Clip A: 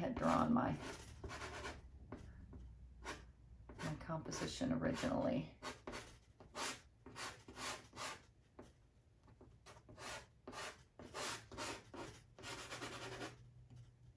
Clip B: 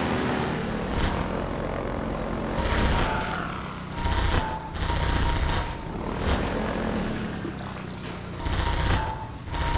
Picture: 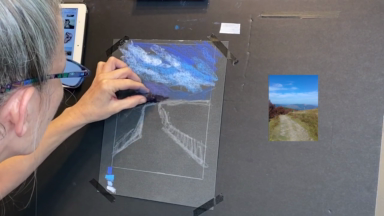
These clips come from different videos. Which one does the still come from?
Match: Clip A